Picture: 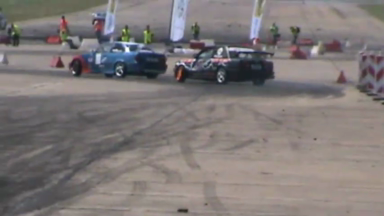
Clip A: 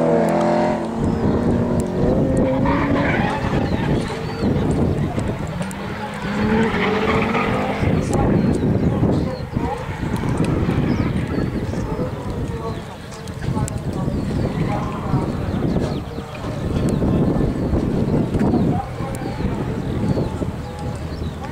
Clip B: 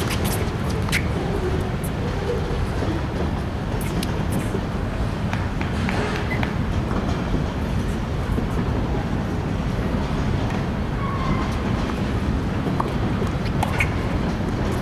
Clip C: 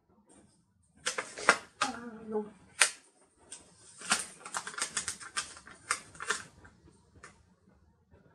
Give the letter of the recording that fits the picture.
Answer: A